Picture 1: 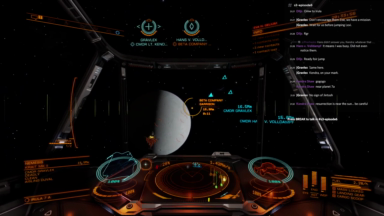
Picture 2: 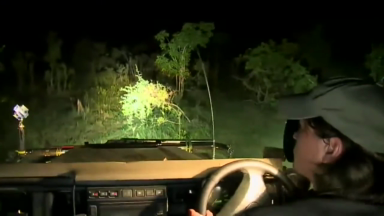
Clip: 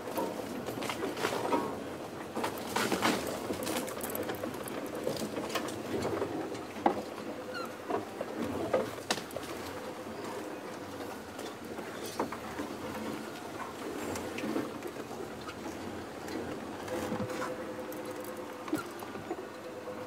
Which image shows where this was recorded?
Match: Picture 2